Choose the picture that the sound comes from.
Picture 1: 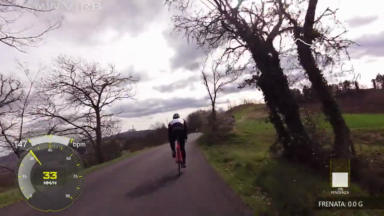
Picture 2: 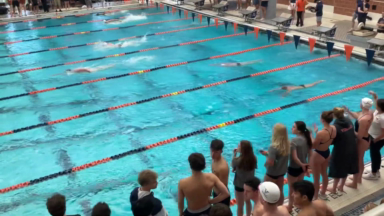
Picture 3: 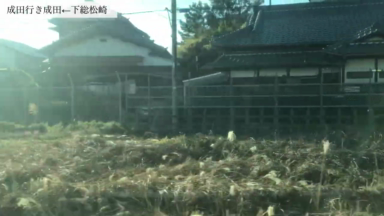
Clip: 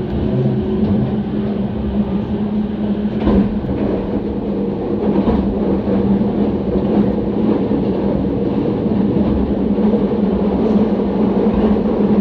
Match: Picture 3